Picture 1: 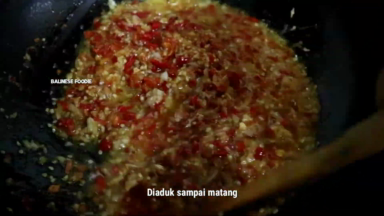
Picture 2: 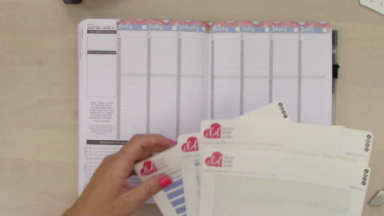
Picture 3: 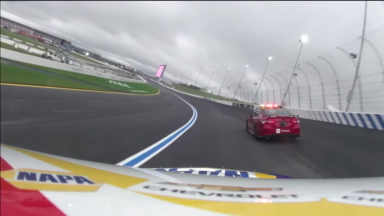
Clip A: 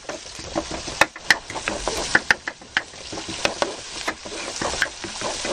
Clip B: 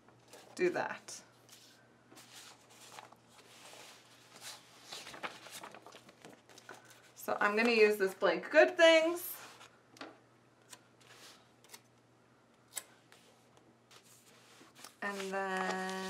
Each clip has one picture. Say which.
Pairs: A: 1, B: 2